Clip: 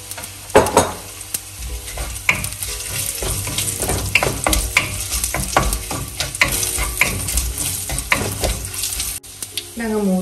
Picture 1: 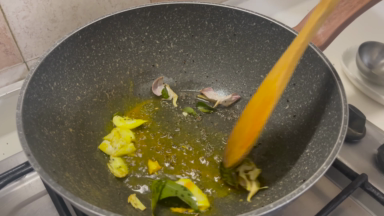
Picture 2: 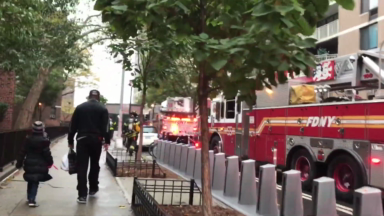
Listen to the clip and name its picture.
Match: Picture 1